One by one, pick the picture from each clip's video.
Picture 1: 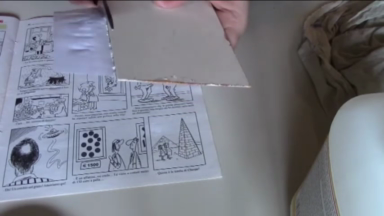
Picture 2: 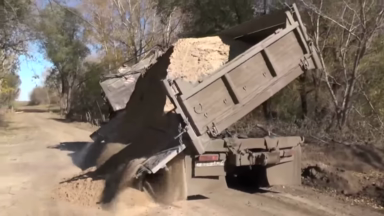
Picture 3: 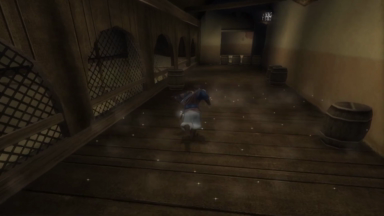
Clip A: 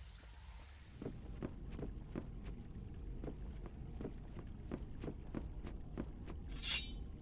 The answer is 3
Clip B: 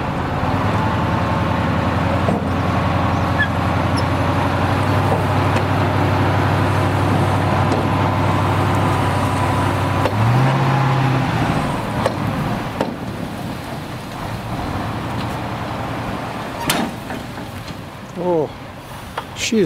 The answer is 2